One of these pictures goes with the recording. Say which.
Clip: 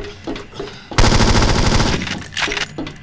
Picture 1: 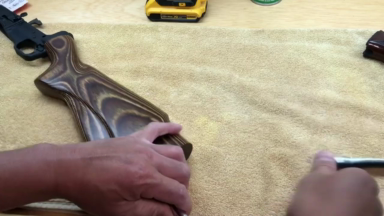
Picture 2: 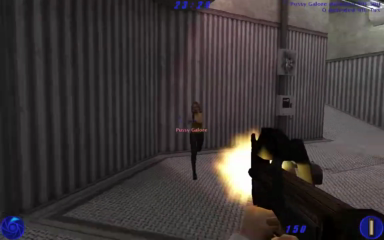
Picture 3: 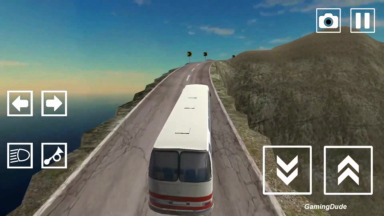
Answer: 2